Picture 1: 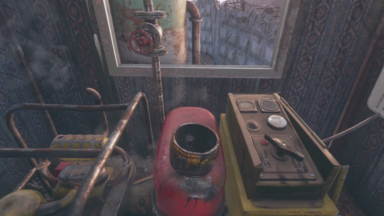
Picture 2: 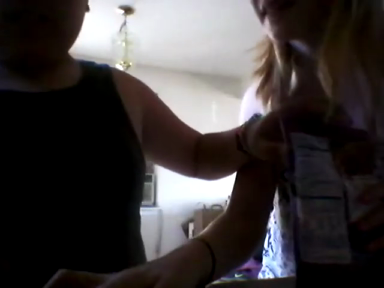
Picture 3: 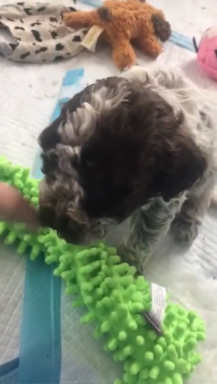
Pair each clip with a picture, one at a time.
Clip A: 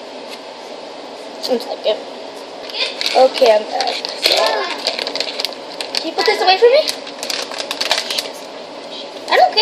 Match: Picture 2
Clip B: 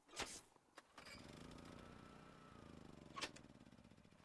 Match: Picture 1